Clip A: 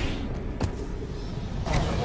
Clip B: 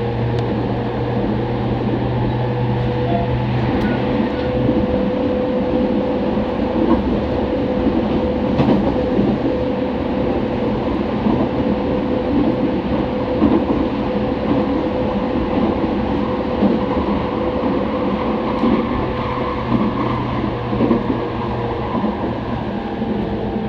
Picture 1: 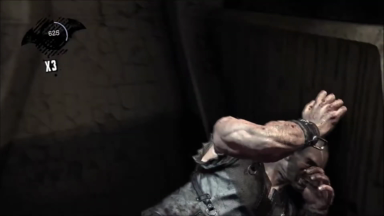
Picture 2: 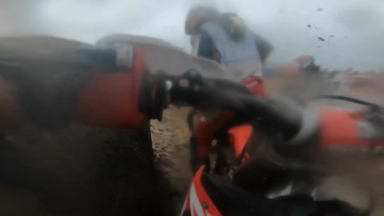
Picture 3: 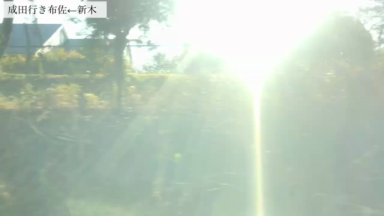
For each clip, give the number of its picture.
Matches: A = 1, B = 3